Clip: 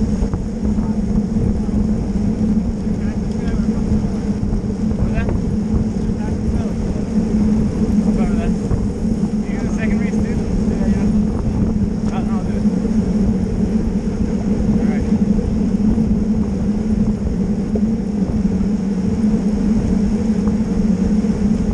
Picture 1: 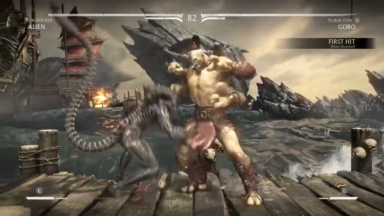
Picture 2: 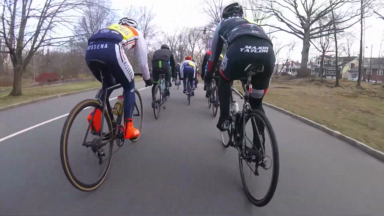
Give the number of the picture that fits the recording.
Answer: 2